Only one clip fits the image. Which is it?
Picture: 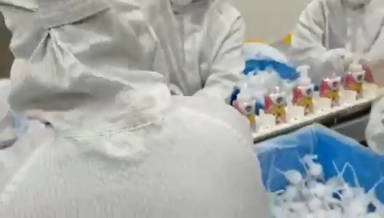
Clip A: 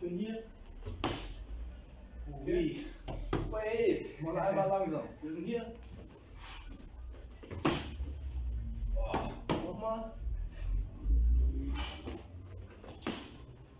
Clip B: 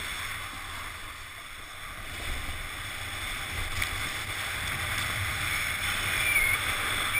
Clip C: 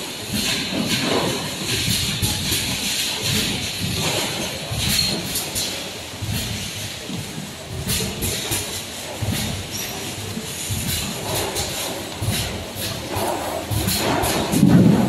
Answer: C